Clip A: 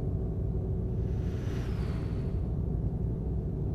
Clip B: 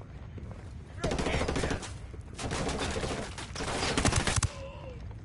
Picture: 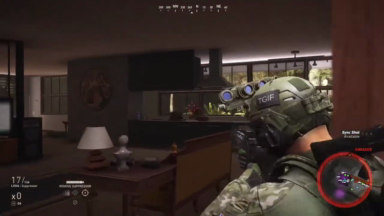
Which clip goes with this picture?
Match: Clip B